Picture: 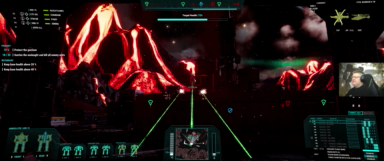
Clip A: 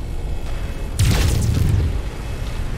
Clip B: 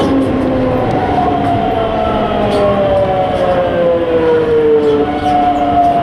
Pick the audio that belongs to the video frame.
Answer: A